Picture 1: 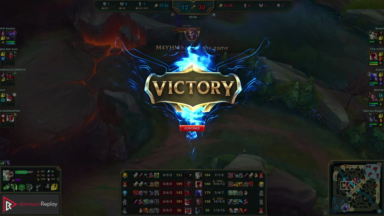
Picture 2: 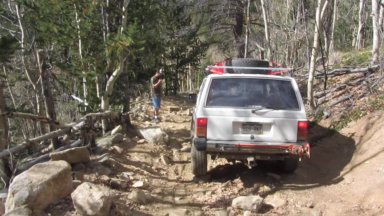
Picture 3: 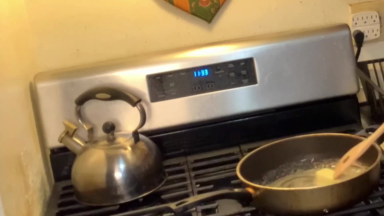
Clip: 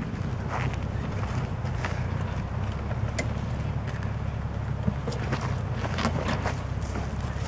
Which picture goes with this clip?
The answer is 2